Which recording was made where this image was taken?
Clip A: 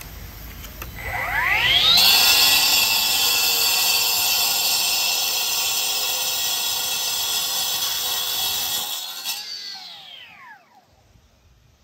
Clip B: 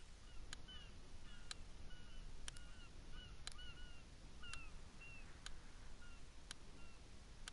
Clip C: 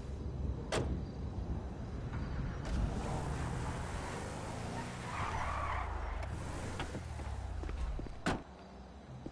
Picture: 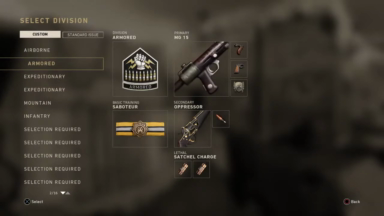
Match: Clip B